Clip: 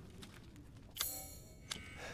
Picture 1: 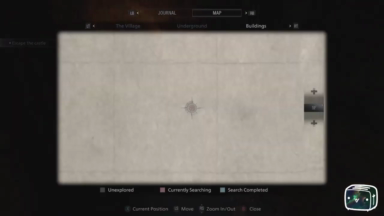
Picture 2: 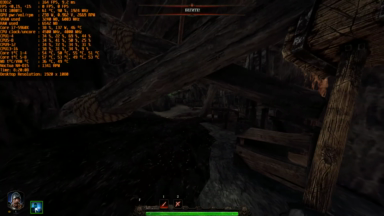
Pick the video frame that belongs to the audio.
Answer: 1